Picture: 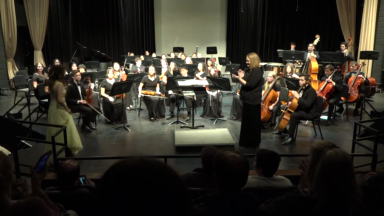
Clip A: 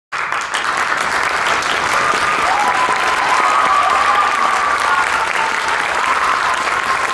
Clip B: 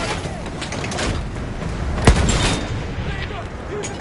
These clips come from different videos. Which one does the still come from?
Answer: A